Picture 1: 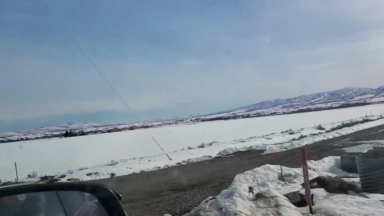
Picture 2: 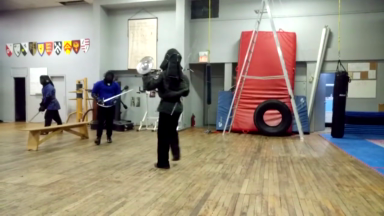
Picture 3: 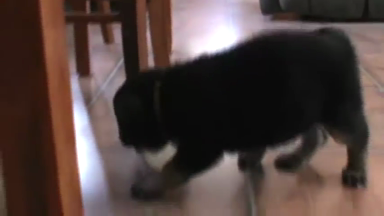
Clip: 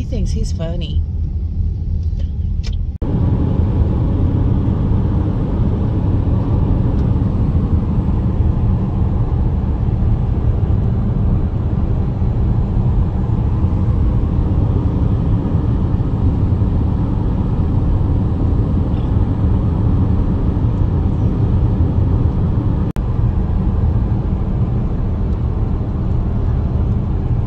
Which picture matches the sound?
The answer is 1